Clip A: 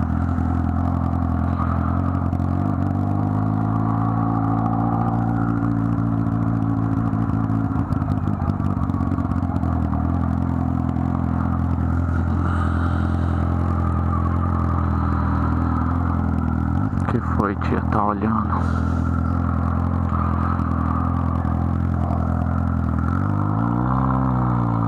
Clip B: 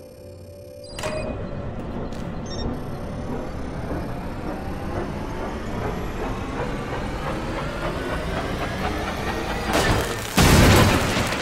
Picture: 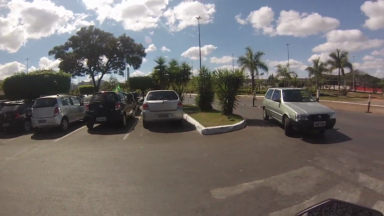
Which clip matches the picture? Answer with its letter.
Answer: A